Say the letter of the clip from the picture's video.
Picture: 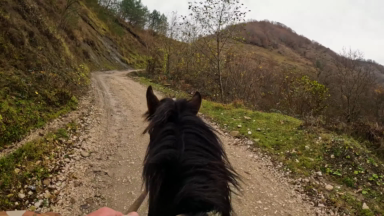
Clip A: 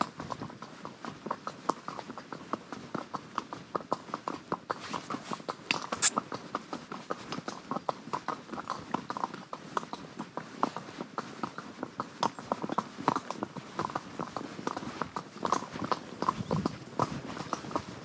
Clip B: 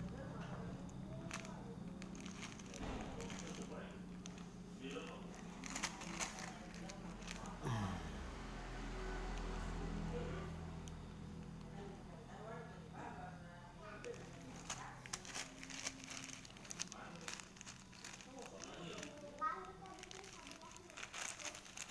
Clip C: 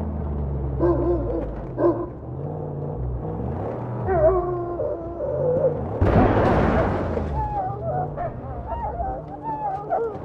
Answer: A